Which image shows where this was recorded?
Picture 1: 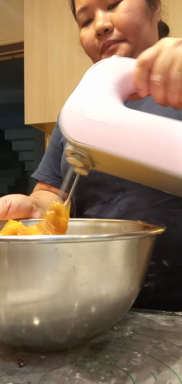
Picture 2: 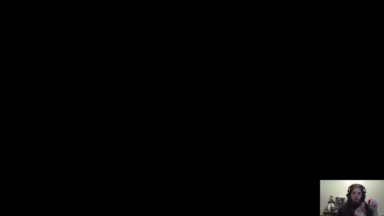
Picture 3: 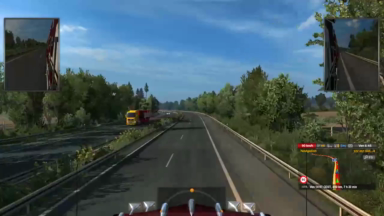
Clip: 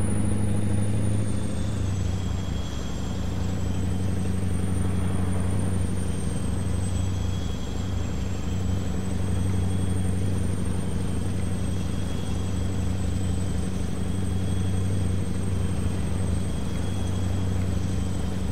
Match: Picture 3